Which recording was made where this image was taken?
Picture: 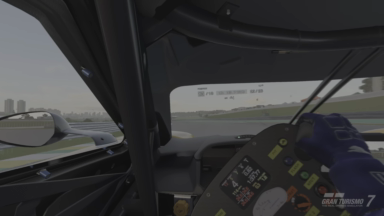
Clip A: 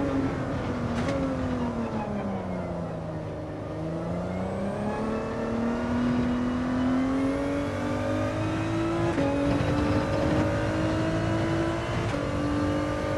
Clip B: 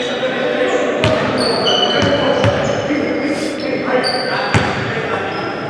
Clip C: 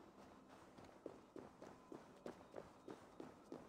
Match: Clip A